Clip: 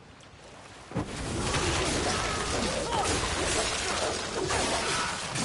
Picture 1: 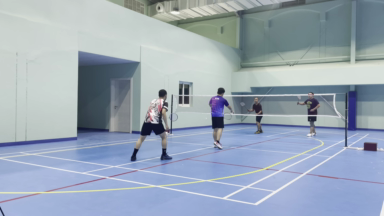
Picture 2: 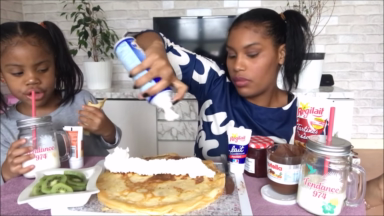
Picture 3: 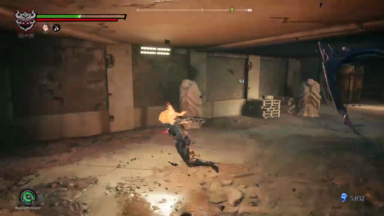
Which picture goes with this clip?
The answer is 3